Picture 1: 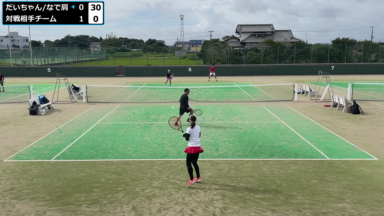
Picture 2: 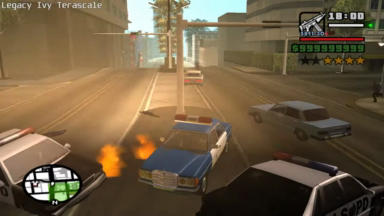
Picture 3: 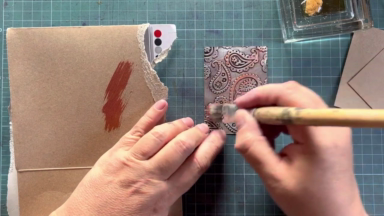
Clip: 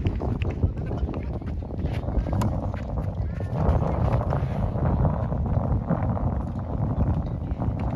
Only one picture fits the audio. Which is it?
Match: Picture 1